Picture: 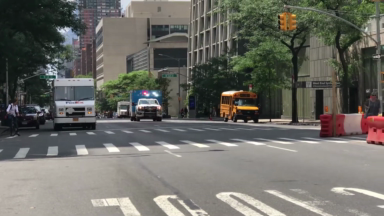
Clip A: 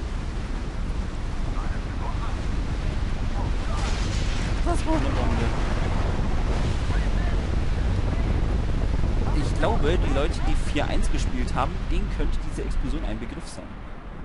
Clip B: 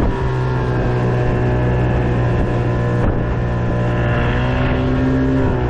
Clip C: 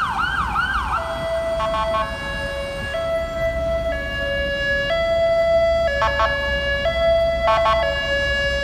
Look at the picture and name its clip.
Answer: C